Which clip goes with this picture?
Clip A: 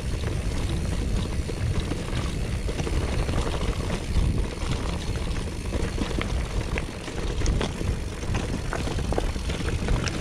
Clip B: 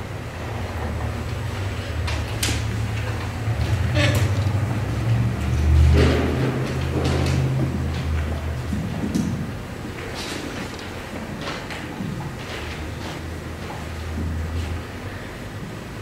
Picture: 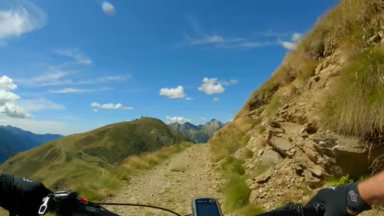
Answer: A